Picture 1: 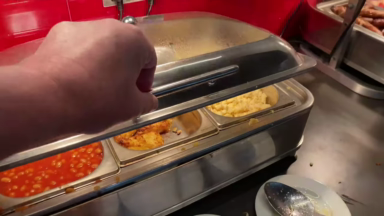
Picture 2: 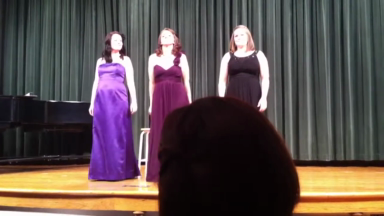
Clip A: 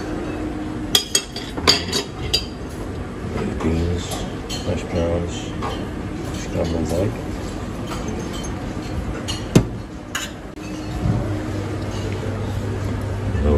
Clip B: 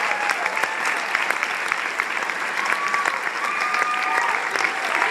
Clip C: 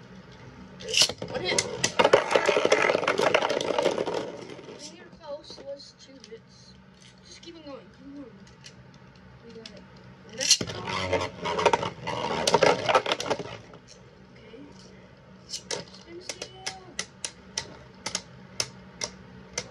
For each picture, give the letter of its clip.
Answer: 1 A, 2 B